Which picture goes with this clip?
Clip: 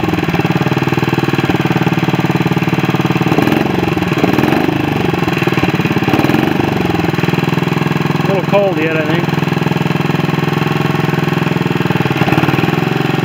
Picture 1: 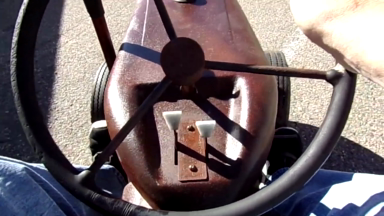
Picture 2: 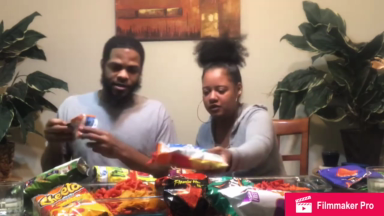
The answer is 1